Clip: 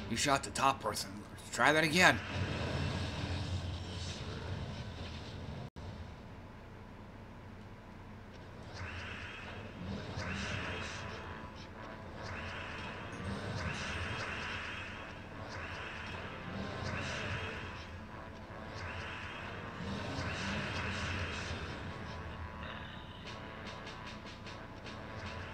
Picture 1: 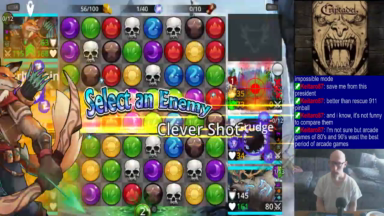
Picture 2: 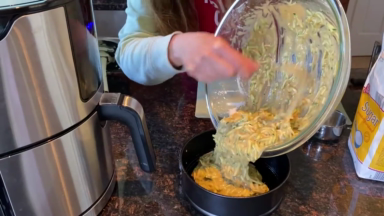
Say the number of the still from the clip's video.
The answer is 1